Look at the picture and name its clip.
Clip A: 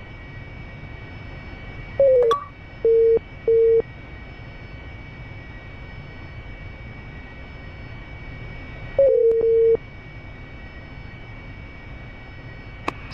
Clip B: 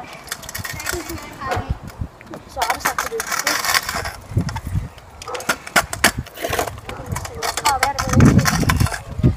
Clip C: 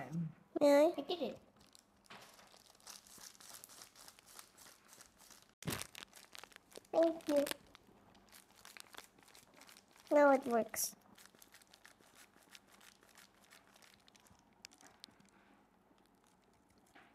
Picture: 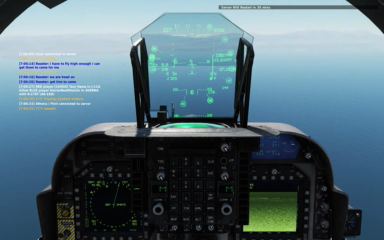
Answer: A